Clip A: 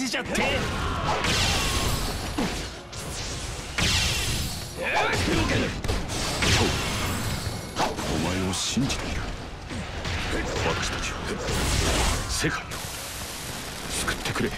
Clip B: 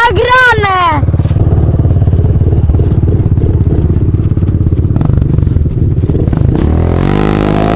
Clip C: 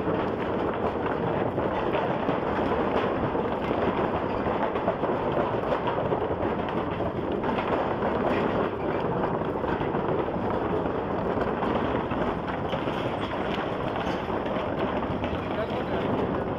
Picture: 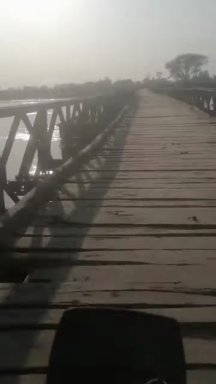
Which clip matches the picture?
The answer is C